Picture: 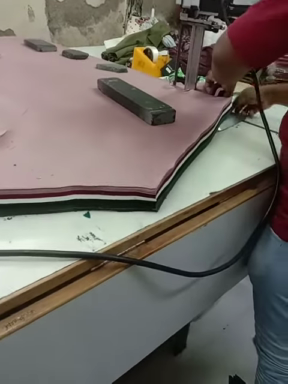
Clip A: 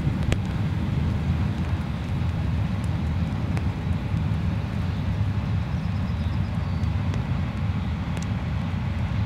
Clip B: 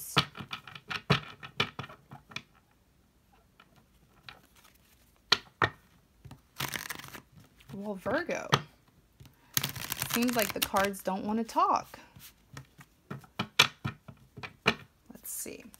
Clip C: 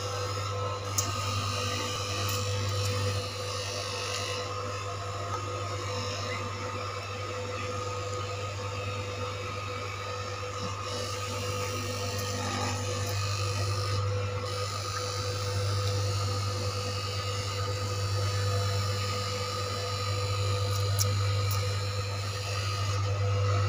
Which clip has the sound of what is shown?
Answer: C